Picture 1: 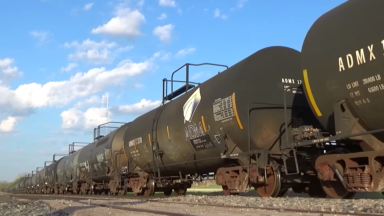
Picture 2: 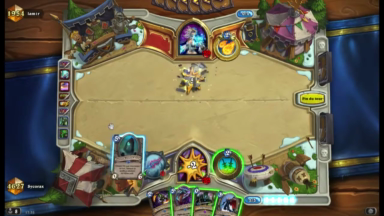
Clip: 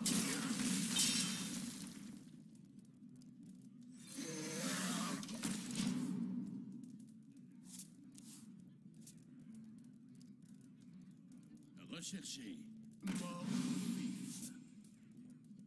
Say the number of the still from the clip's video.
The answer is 2